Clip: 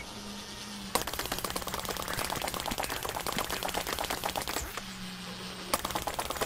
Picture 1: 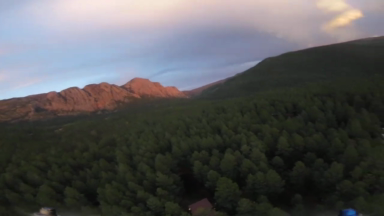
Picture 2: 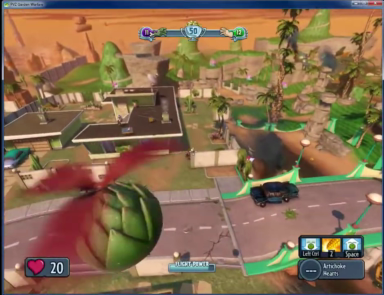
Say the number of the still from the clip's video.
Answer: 2